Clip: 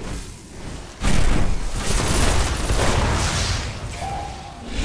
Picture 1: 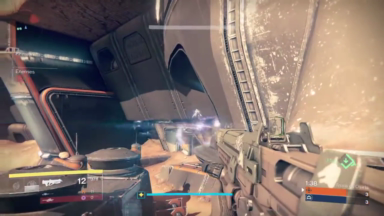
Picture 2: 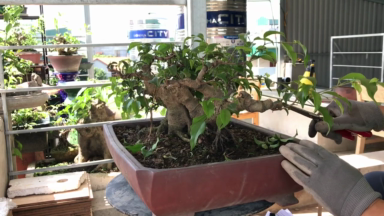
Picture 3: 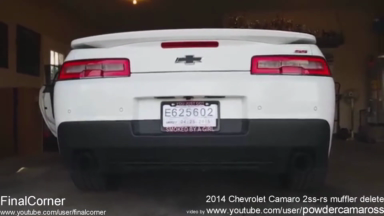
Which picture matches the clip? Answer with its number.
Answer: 1